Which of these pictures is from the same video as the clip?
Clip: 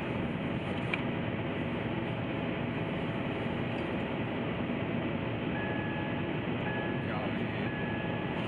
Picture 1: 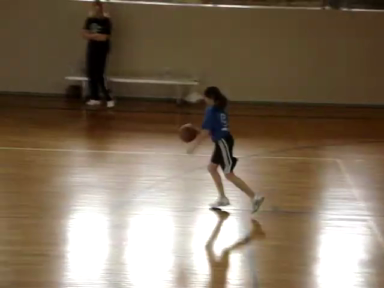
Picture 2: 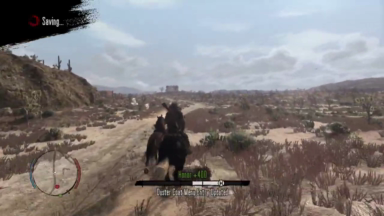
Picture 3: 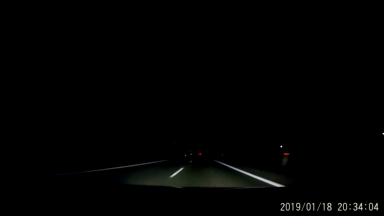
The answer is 3